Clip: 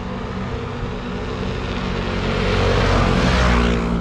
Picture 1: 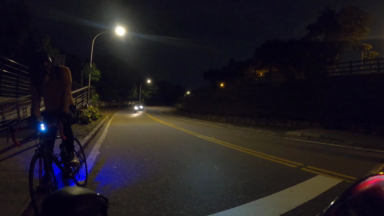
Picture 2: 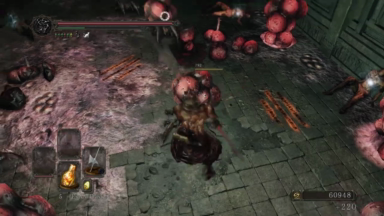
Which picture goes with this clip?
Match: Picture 1